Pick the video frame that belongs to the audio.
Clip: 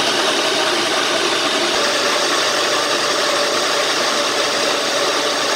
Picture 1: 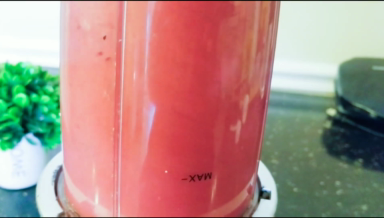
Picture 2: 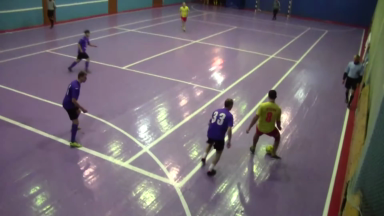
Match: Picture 1